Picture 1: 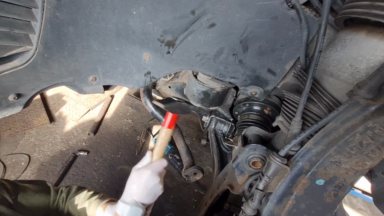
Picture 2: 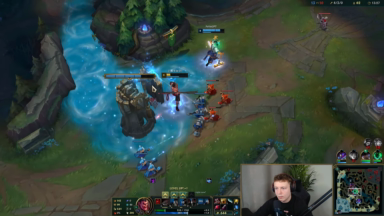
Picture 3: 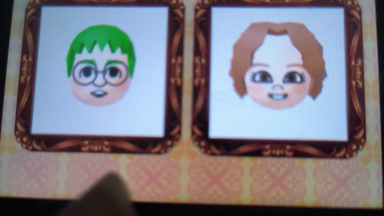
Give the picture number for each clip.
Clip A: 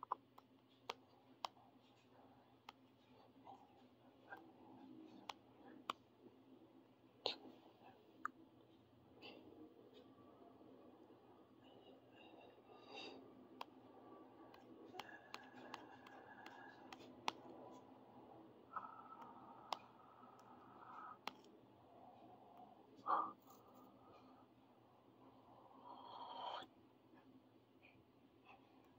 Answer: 3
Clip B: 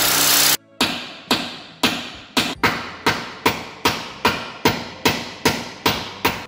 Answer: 1